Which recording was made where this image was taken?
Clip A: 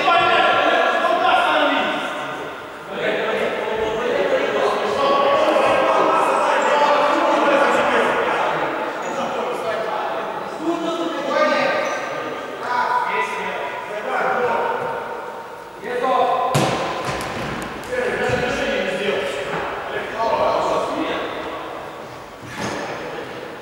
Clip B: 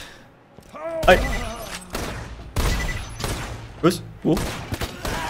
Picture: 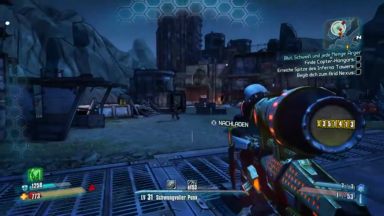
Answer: B